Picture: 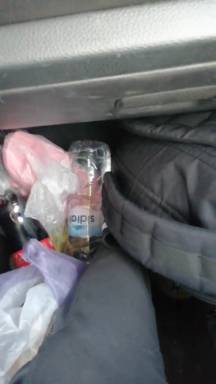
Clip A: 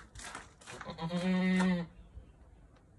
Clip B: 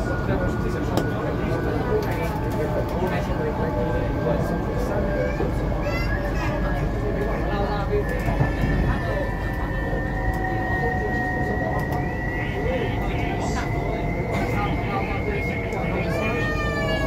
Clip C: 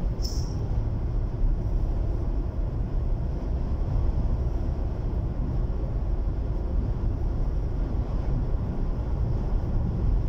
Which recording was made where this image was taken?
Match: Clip C